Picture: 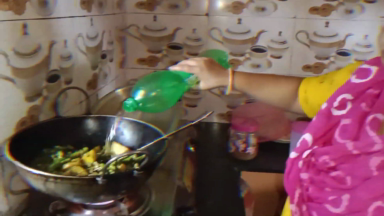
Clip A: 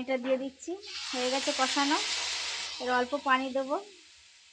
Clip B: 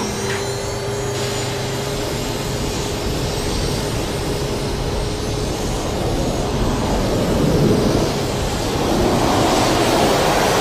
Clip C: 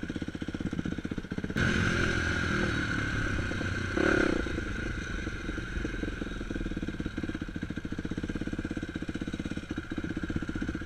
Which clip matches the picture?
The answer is A